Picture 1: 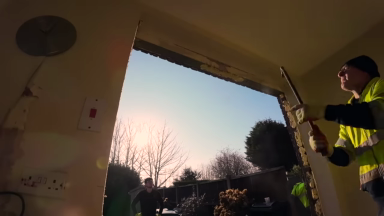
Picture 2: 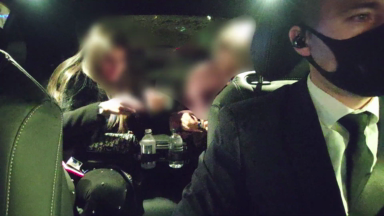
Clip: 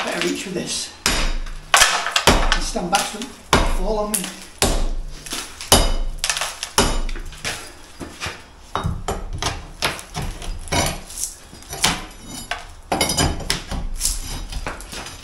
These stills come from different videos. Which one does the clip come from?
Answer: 1